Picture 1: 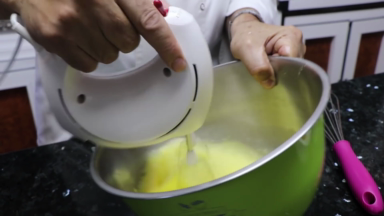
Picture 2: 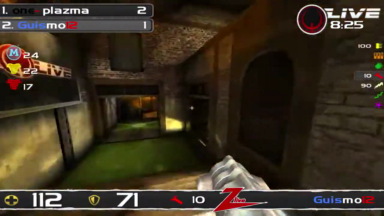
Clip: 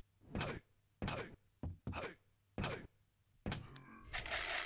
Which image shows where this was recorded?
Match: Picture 2